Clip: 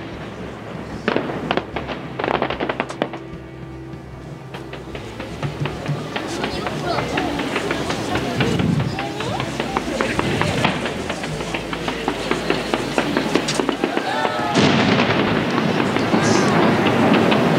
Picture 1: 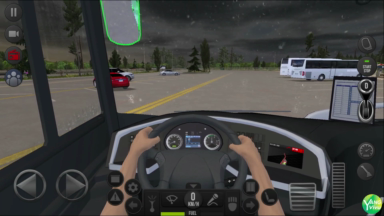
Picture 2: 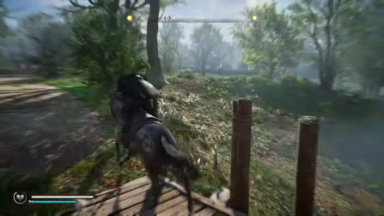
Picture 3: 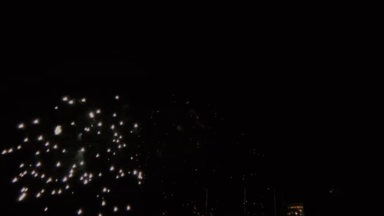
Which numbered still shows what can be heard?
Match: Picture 3